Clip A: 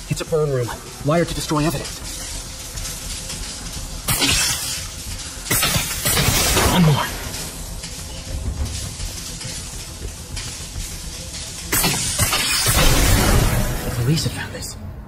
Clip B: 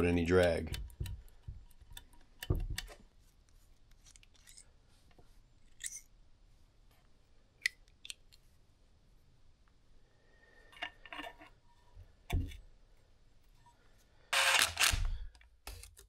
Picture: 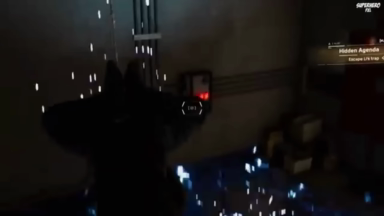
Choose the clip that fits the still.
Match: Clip A